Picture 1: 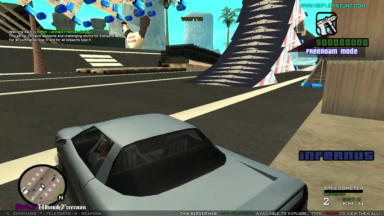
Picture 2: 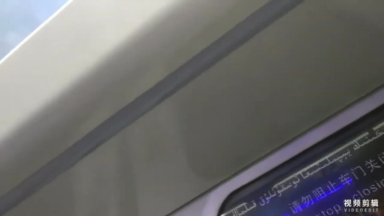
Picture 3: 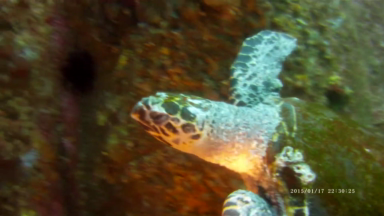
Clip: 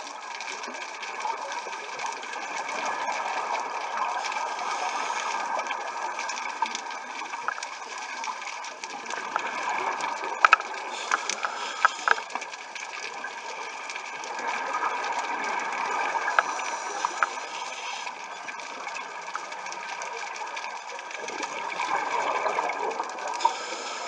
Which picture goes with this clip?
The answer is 3